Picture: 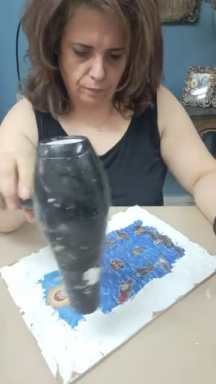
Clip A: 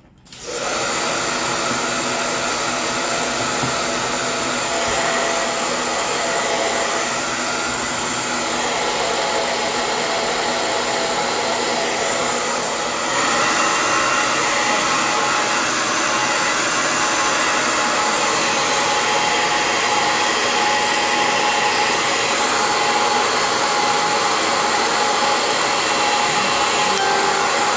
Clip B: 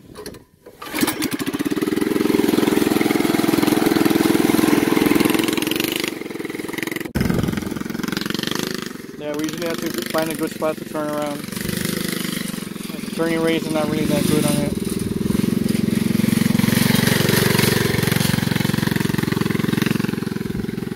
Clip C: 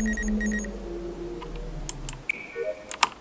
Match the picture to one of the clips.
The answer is A